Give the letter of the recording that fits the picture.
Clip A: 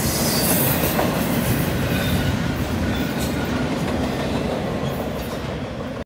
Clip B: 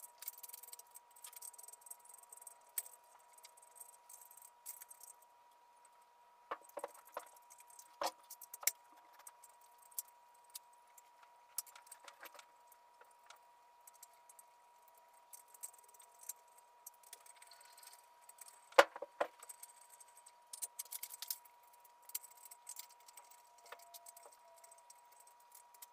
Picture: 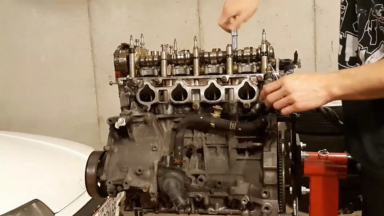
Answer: B